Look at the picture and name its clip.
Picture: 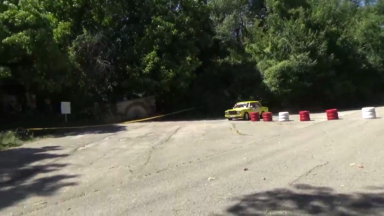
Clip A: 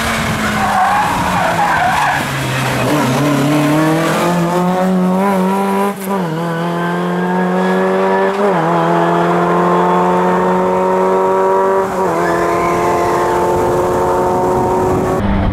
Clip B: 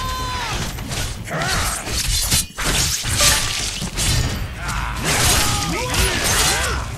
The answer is A